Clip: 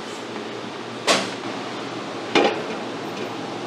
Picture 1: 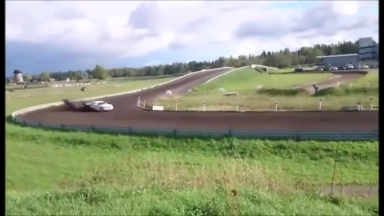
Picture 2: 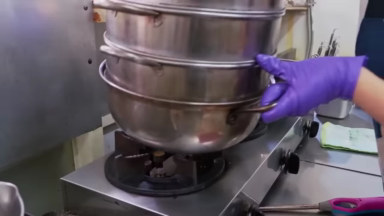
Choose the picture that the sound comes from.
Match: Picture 2